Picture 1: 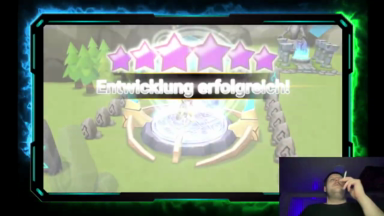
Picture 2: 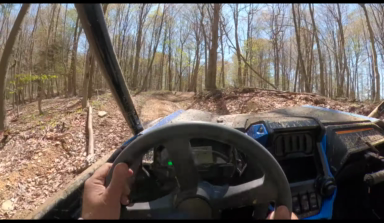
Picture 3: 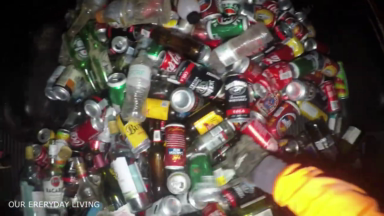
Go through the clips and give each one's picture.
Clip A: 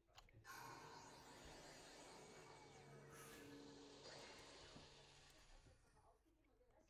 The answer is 1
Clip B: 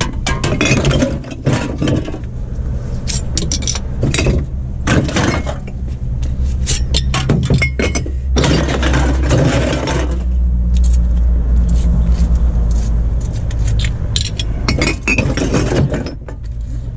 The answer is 3